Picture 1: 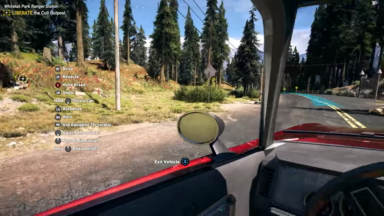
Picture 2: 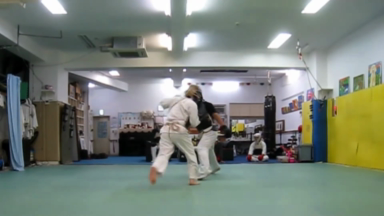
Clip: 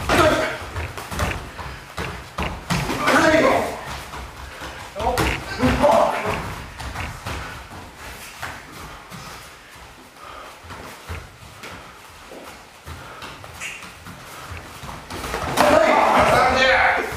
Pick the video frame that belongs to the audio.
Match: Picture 2